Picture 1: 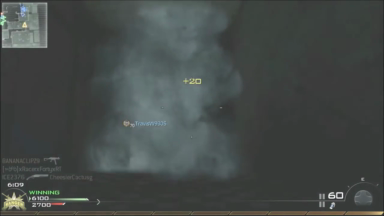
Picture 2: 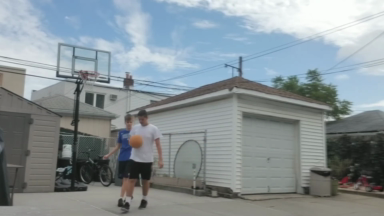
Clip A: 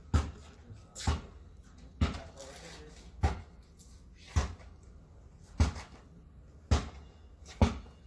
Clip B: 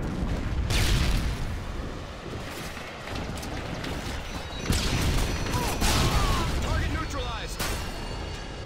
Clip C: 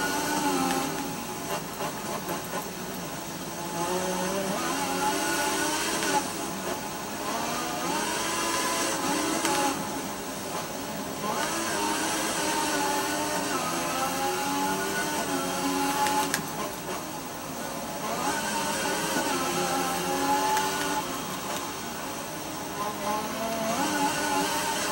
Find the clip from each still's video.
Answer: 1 B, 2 A